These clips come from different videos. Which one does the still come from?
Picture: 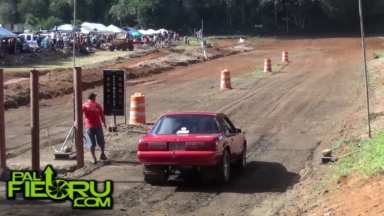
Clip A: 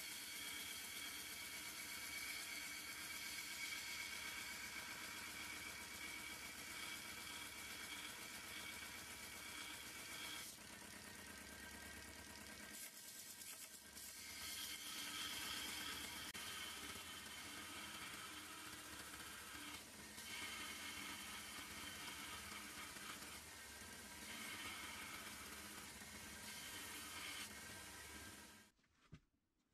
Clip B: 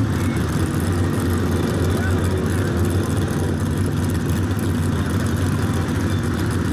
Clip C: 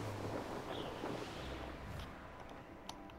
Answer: B